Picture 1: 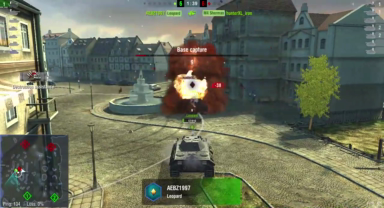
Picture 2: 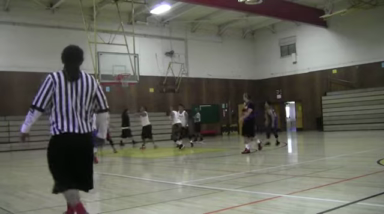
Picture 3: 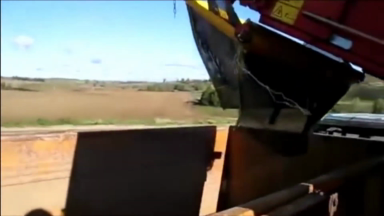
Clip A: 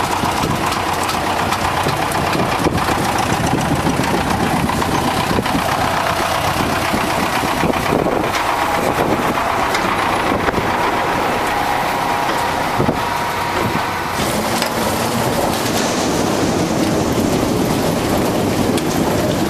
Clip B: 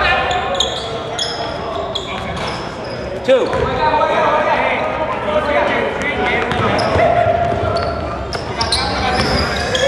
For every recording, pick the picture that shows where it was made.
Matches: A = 3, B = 2